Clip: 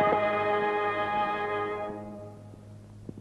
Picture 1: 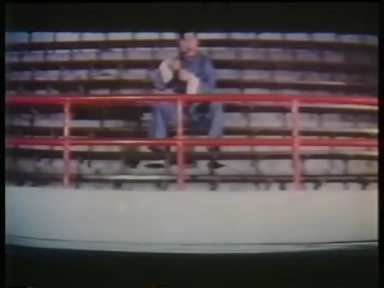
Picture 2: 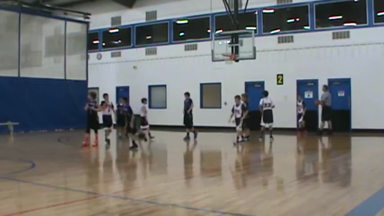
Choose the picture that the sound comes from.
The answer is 1